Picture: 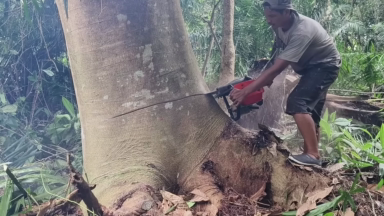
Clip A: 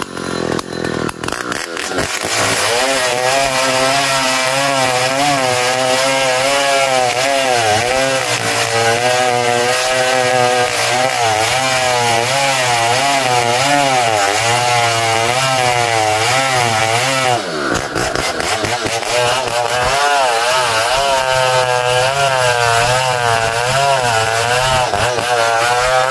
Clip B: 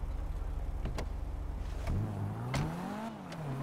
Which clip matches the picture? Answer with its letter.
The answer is A